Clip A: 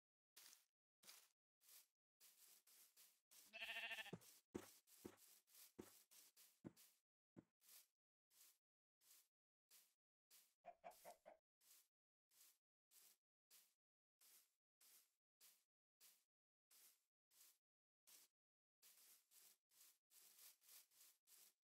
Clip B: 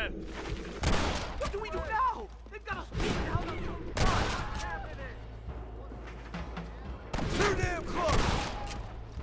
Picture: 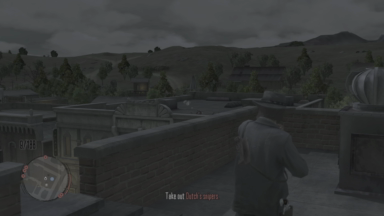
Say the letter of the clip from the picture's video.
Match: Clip B